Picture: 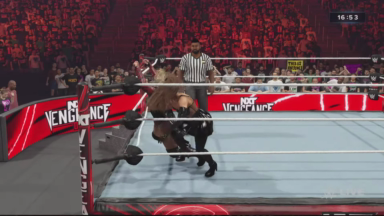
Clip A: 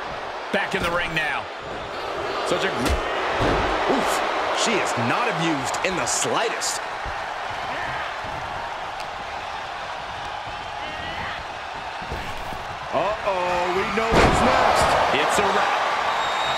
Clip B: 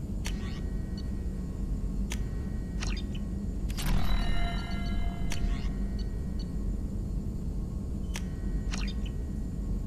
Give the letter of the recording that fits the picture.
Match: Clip A